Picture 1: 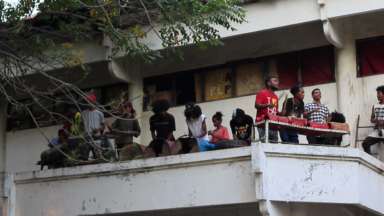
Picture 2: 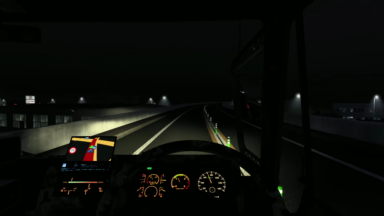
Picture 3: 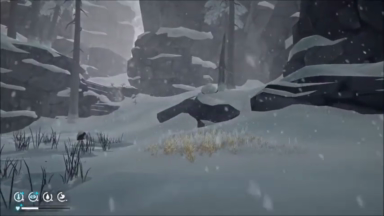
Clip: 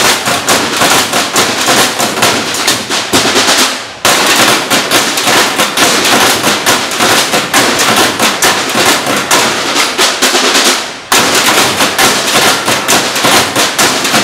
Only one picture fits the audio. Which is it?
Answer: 1